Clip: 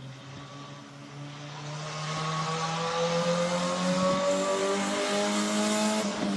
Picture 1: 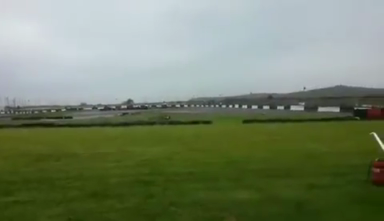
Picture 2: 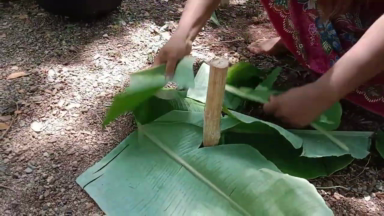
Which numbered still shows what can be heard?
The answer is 1